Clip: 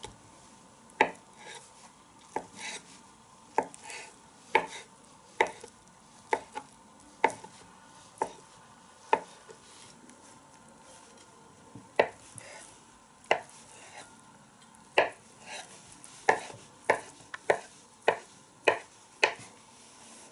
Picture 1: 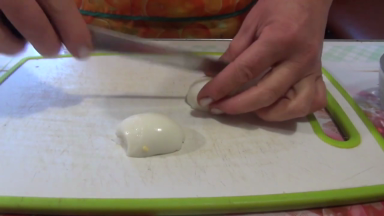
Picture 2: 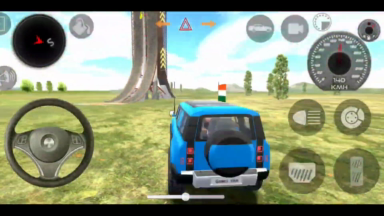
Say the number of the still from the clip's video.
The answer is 1